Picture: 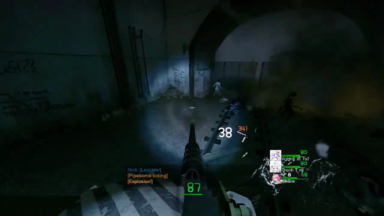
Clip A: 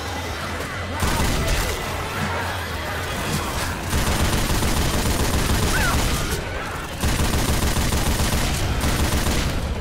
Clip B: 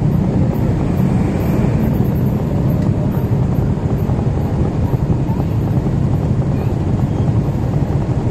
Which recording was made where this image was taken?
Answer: A